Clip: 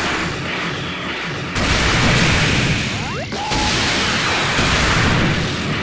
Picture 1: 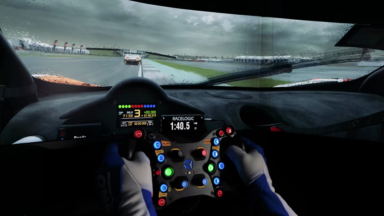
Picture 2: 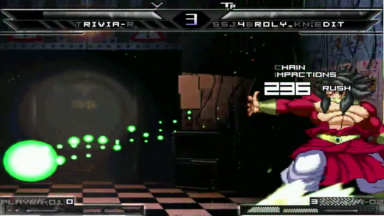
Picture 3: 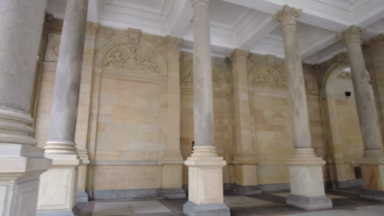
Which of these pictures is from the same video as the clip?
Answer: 2